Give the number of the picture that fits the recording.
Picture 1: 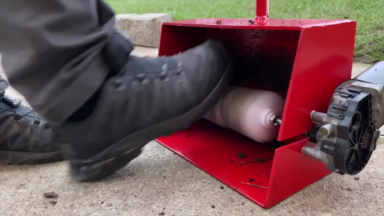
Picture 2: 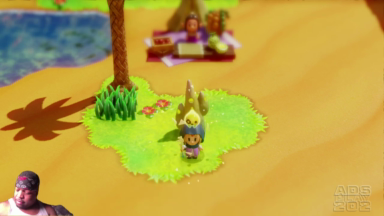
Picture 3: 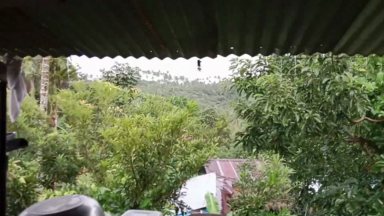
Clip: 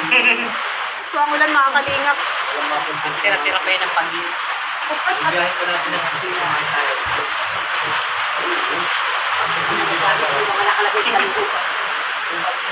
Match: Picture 3